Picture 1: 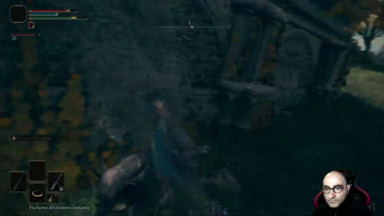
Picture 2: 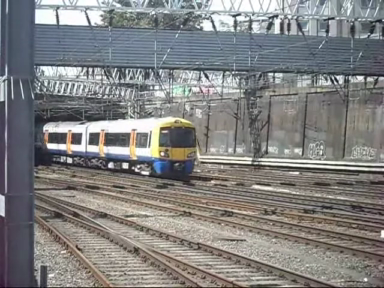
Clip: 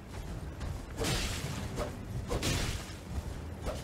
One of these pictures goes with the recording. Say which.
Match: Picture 1